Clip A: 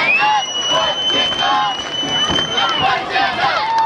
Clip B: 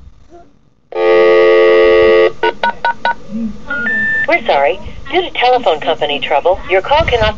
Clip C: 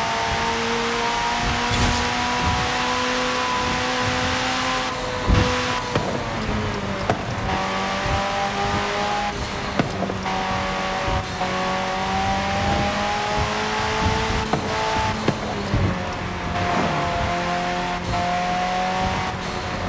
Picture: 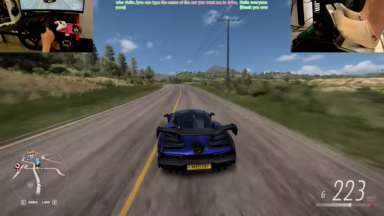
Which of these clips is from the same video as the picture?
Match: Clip C